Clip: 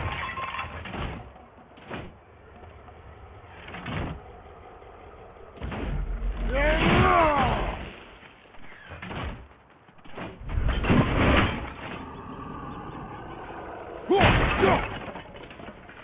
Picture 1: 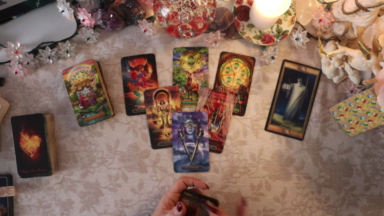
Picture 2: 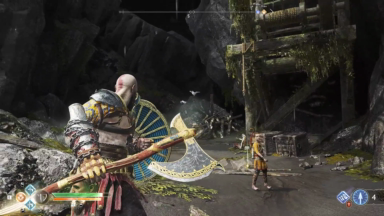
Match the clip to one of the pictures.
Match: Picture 2